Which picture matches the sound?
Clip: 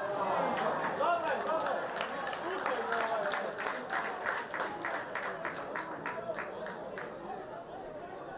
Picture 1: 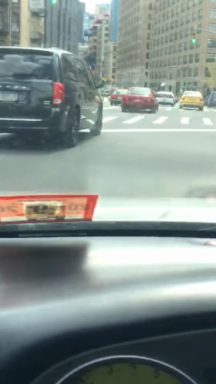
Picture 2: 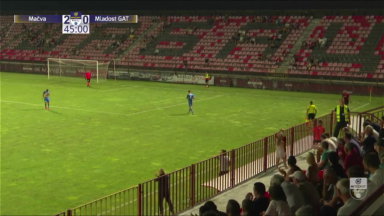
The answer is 2